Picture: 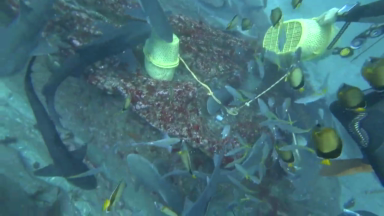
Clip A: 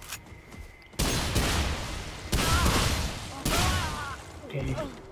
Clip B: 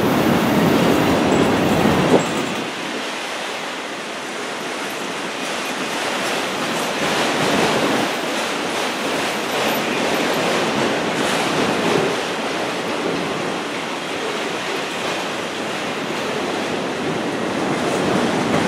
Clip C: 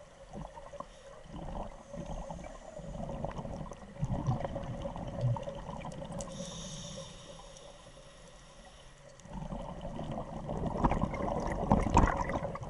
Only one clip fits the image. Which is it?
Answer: C